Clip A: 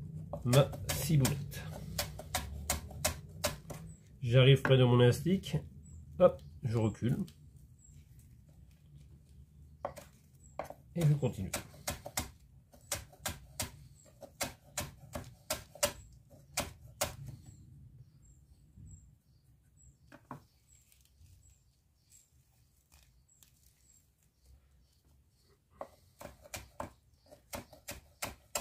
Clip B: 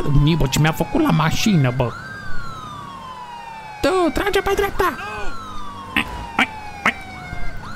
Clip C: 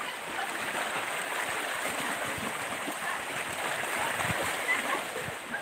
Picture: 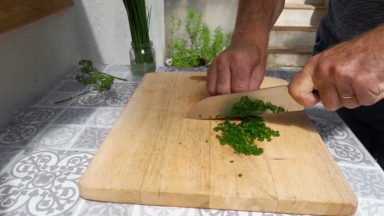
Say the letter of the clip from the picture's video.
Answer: A